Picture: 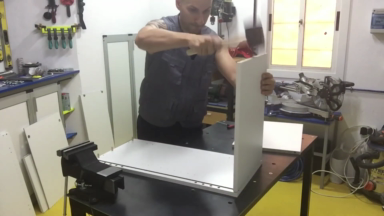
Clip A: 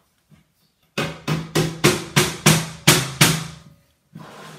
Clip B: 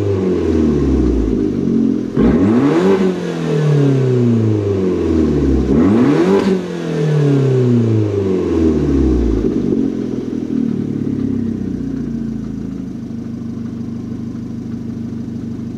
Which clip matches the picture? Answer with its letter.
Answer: A